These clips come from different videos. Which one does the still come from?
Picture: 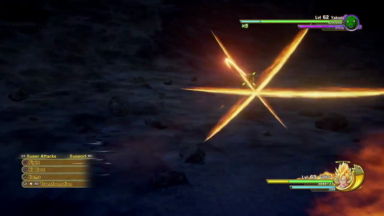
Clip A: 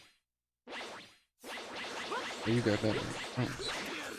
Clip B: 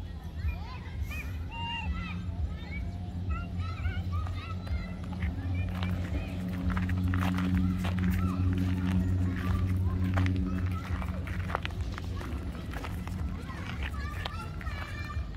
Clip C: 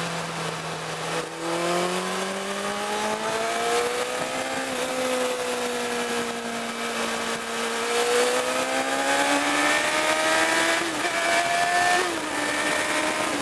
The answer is A